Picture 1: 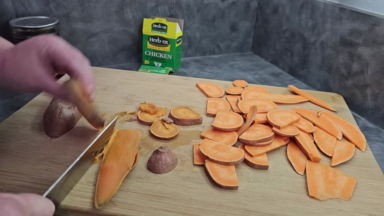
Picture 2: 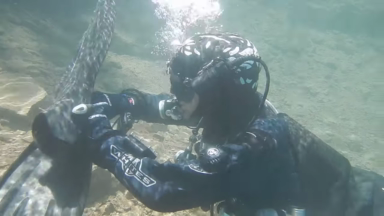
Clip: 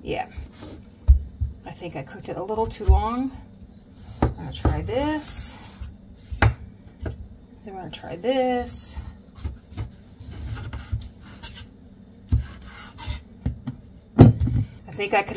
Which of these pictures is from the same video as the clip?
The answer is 1